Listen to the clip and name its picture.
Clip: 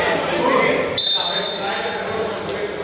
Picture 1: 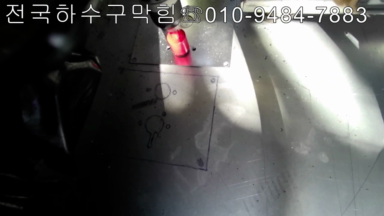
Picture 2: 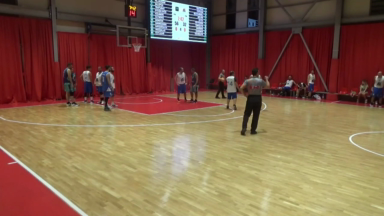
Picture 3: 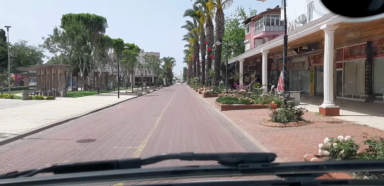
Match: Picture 2